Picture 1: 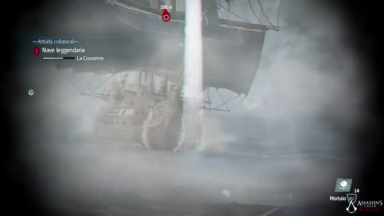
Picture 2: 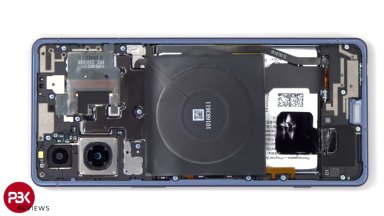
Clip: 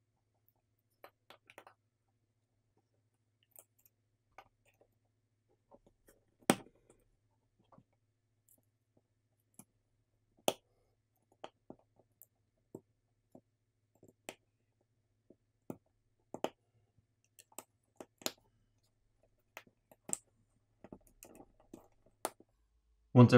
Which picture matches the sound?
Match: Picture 2